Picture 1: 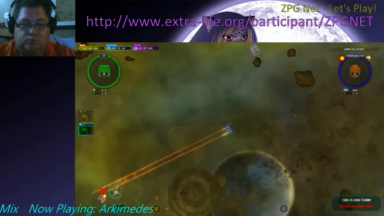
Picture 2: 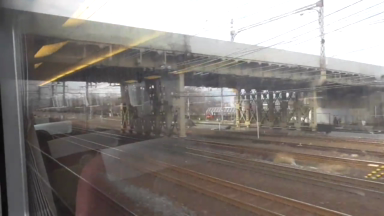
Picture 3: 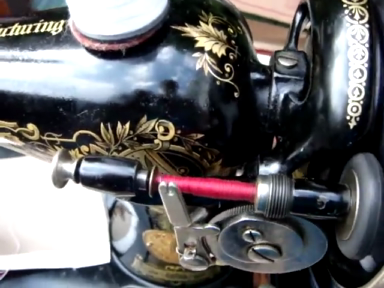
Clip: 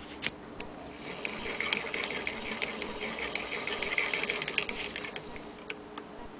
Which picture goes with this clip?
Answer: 3